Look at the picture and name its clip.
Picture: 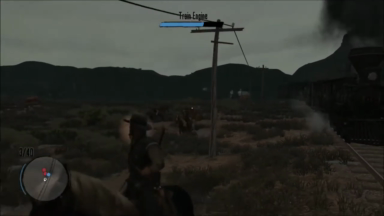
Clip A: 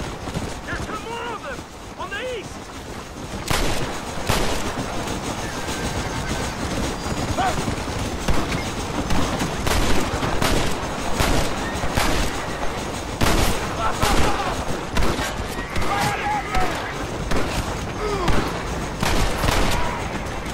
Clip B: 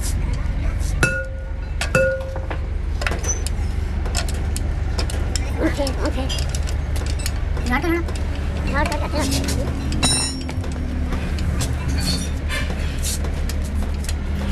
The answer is A